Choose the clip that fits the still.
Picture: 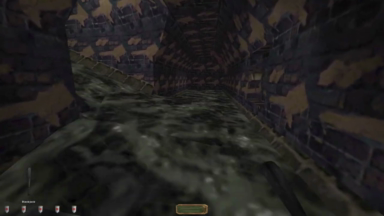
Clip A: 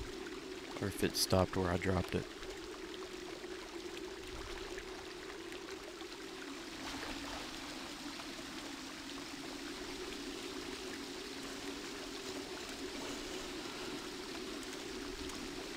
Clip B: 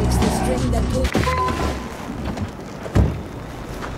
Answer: A